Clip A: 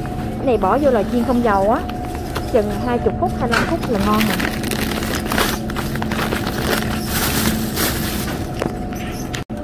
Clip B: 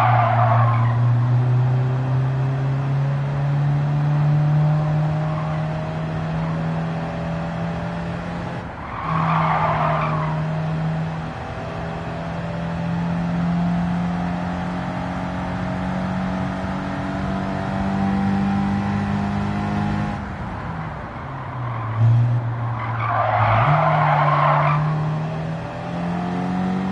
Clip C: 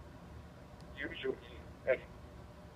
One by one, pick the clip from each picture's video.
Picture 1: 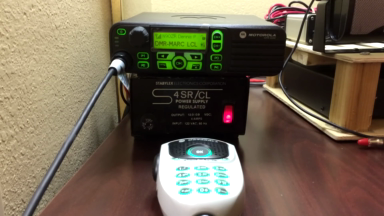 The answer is C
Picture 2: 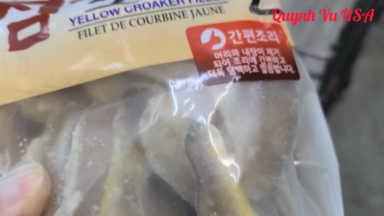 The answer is A